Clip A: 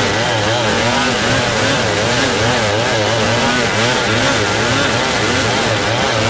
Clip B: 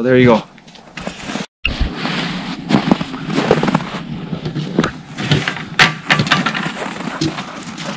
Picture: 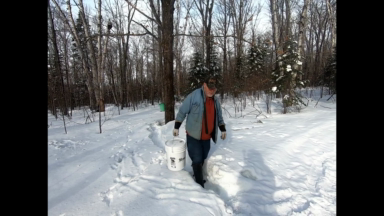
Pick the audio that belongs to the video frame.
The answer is B